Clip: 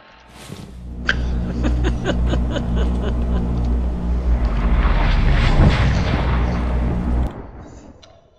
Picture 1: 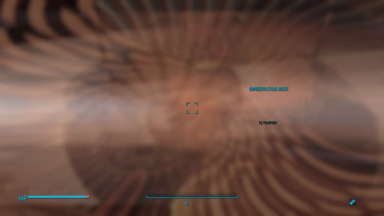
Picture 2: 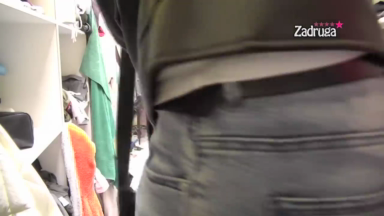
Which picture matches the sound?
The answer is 1